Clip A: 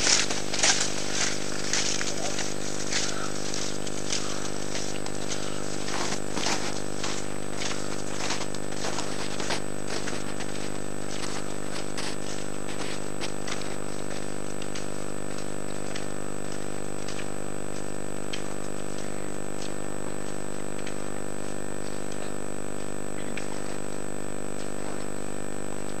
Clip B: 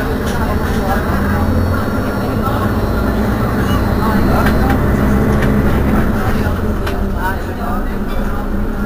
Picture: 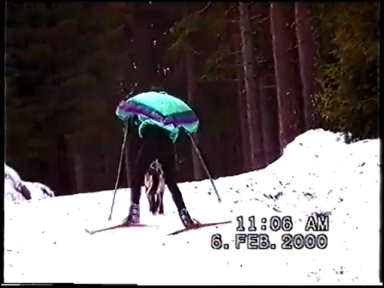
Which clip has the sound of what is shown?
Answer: A